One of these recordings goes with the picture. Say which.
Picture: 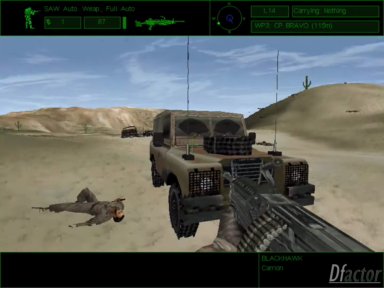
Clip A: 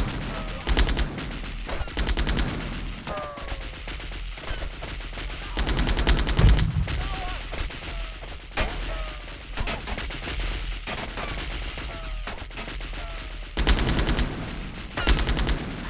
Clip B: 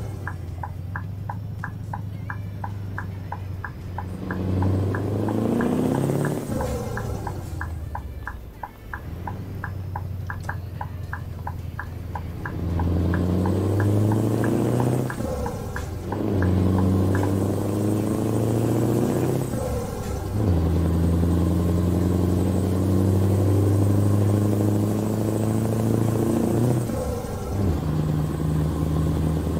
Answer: A